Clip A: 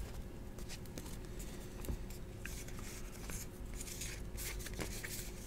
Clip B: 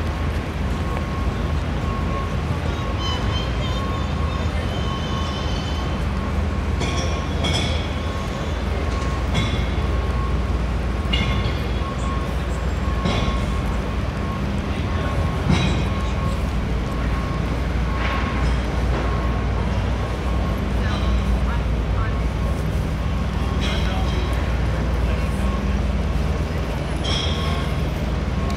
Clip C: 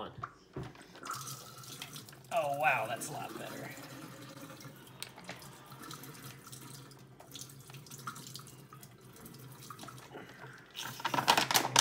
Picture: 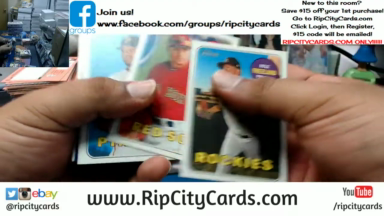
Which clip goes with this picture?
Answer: A